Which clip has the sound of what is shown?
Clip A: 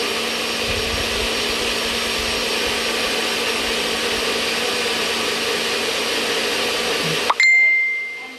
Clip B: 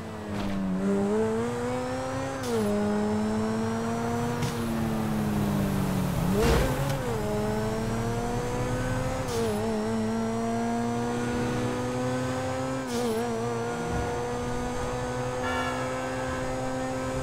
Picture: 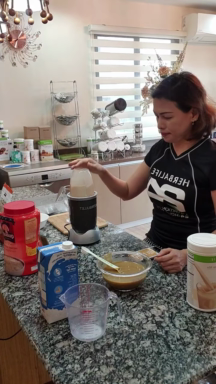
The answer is A